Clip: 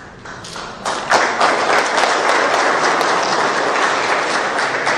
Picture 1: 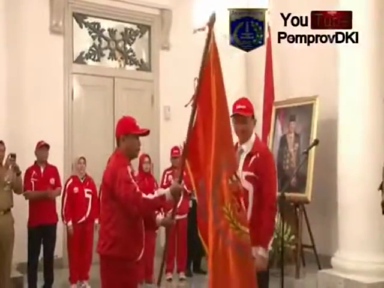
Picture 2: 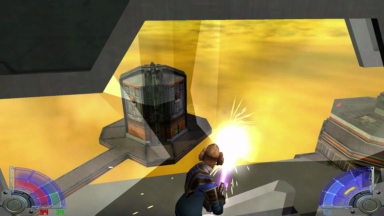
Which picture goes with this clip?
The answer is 1